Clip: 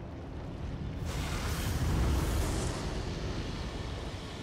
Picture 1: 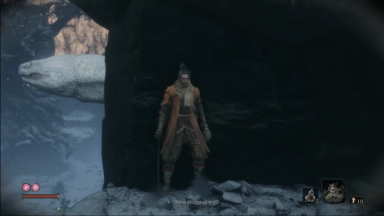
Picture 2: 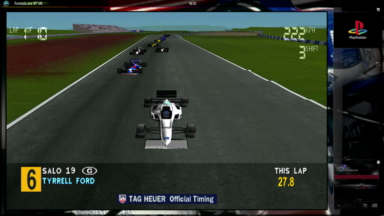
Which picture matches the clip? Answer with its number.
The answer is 1